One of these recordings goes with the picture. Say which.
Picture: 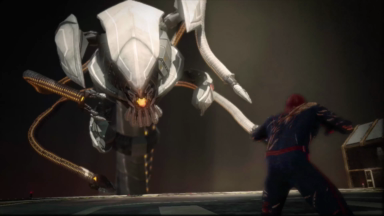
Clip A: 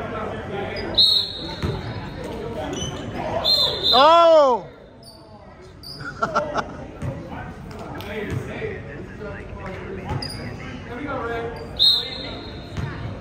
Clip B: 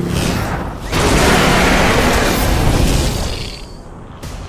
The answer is B